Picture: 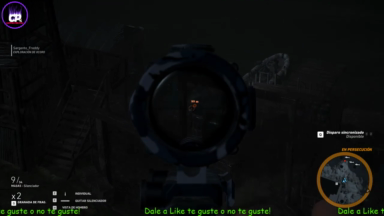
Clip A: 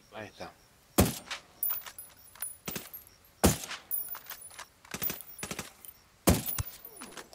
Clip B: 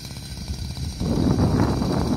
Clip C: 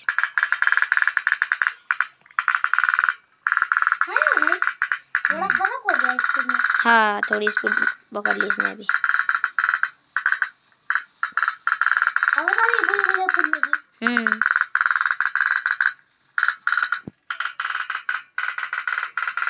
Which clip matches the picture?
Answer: A